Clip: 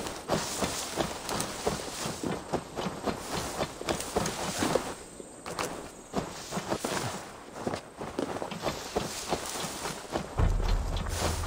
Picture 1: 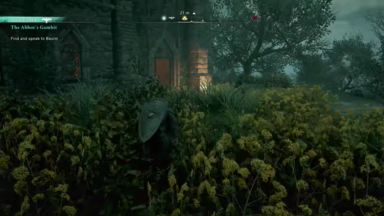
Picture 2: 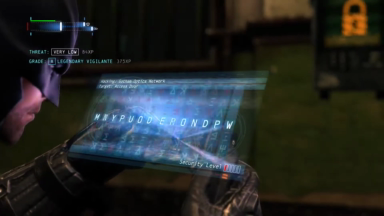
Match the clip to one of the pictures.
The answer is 1